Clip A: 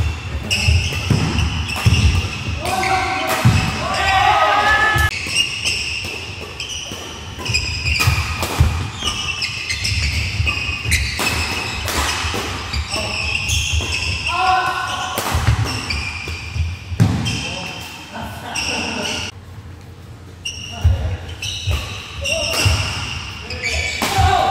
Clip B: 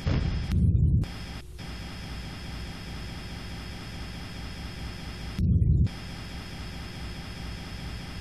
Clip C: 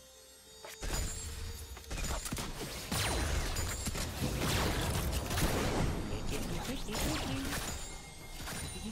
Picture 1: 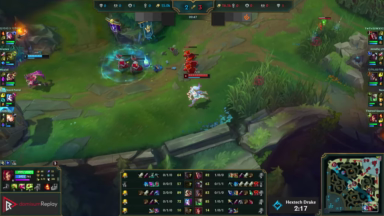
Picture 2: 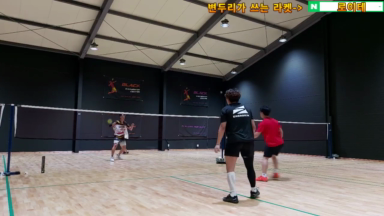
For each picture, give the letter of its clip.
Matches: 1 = C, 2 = A